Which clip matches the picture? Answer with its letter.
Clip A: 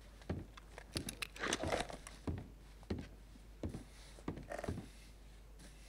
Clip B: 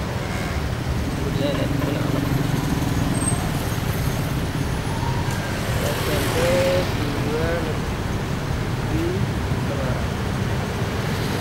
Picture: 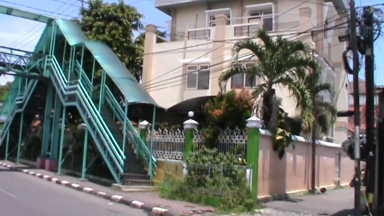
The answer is B